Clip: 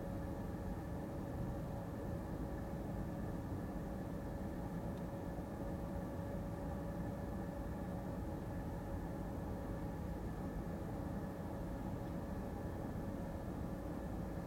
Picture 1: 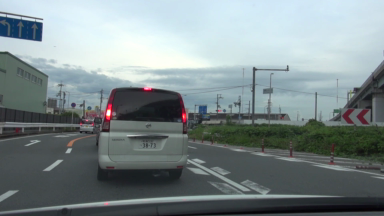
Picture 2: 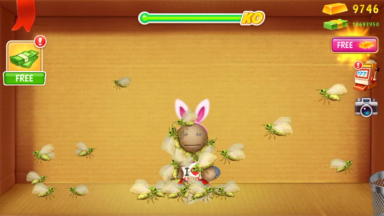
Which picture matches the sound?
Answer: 1